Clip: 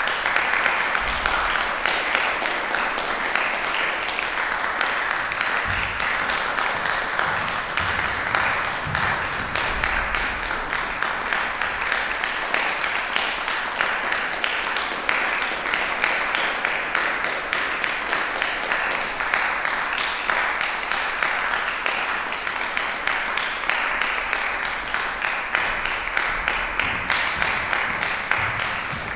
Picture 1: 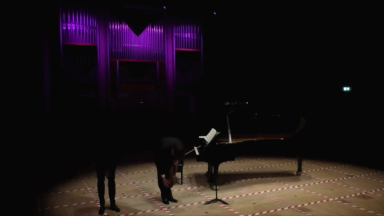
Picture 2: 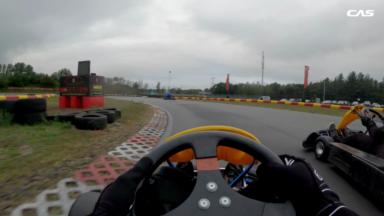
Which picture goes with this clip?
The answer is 1